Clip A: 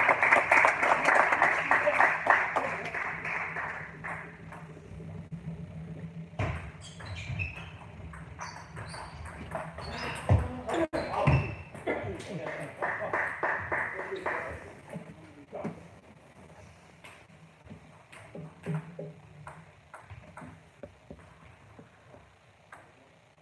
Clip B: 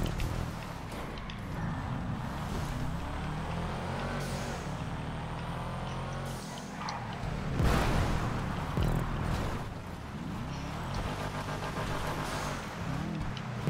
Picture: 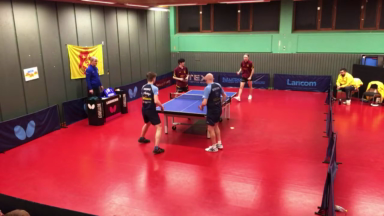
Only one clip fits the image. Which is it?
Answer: A